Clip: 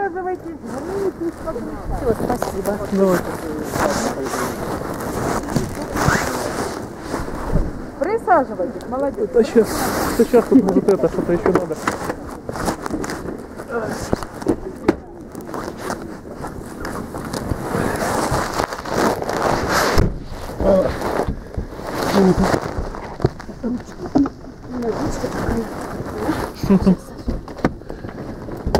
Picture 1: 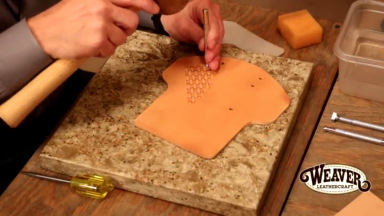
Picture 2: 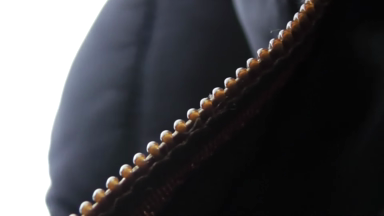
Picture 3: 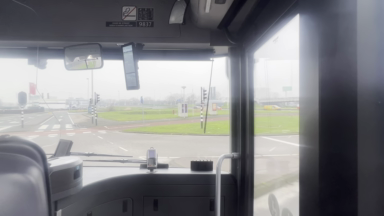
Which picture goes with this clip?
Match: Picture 2